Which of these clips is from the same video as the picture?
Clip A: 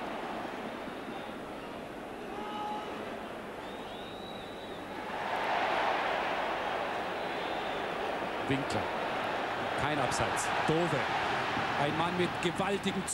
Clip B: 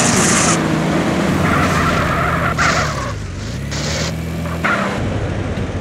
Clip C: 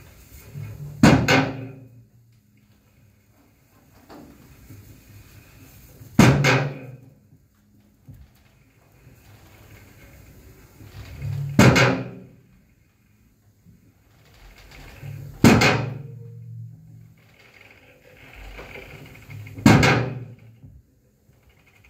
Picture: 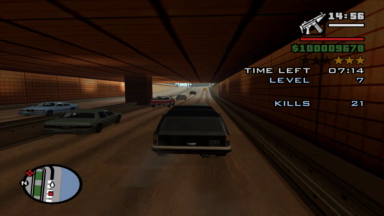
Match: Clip B